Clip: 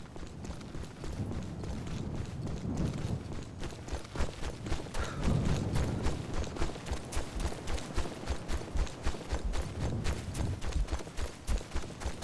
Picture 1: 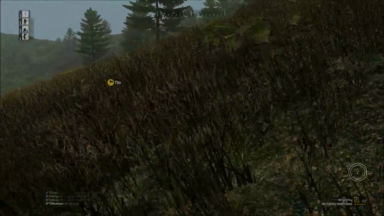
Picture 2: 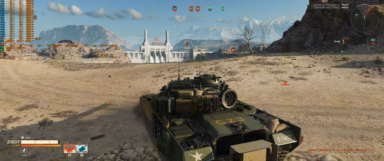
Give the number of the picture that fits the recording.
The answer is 1